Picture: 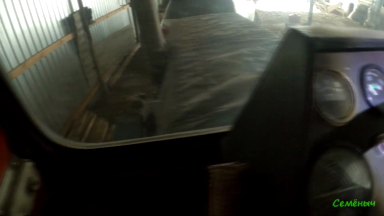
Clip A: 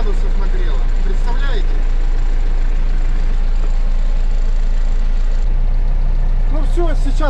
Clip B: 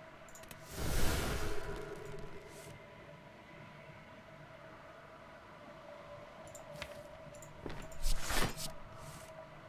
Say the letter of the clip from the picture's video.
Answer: A